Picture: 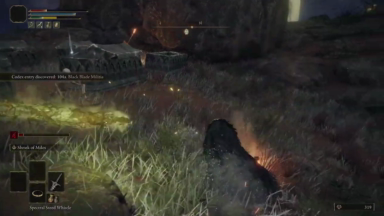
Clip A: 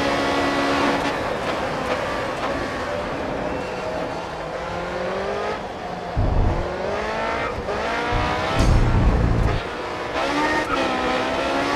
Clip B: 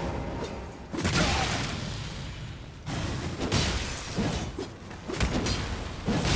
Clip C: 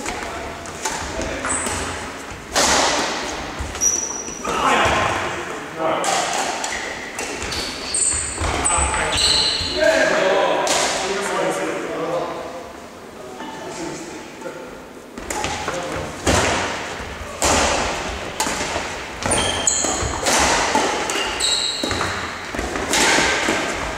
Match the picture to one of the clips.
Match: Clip B